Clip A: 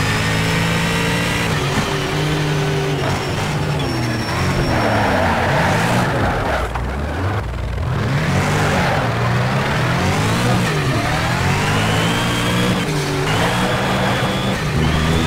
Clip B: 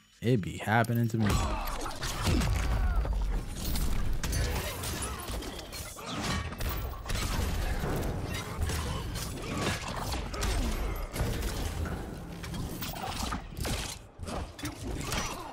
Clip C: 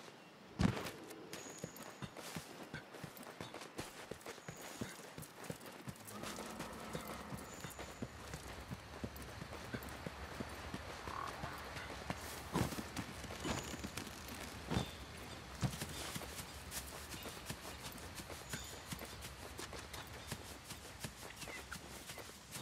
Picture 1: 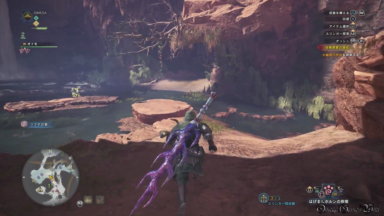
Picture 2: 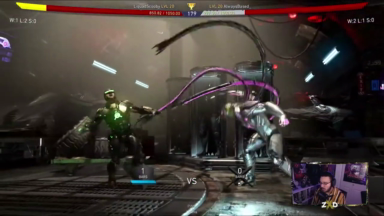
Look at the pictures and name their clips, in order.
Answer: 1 C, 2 B